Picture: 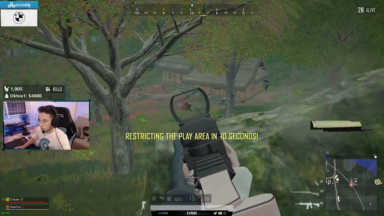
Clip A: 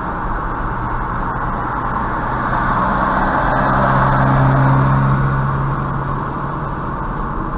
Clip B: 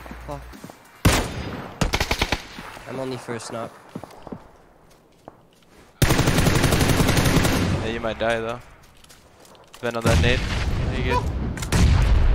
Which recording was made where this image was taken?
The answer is B